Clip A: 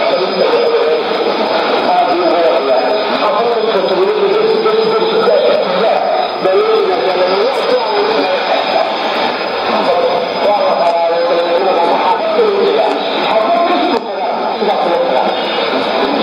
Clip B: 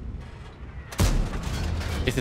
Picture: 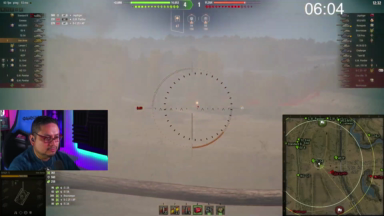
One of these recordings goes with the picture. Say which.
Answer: B